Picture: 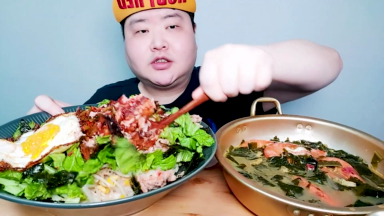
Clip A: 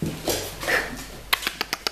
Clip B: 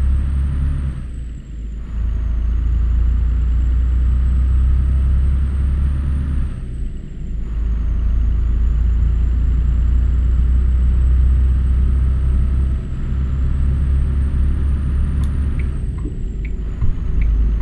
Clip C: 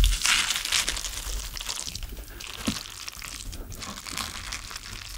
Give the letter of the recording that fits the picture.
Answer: C